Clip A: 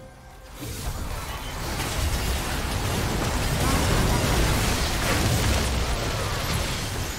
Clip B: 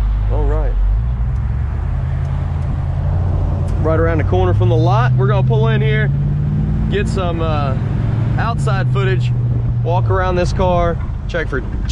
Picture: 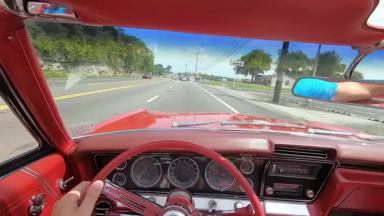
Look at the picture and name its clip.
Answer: B